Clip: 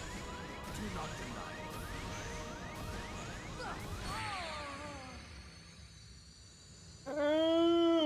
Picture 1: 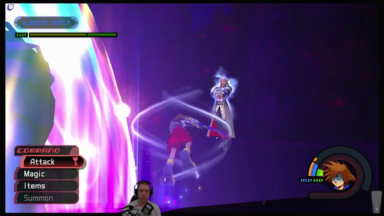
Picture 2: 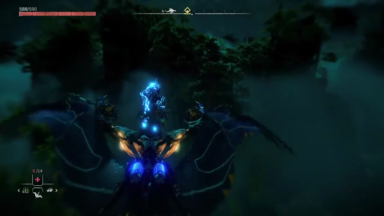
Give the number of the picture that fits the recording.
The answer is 1